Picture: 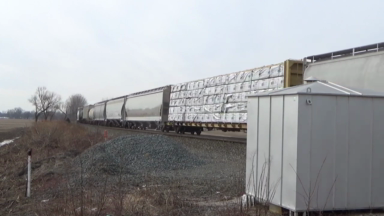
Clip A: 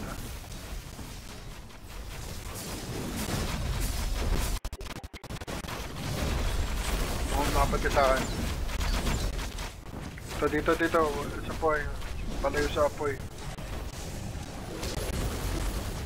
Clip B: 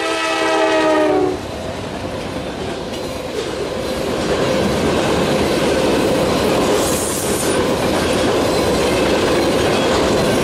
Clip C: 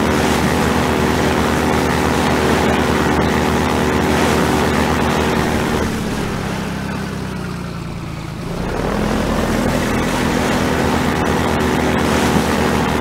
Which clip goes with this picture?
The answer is B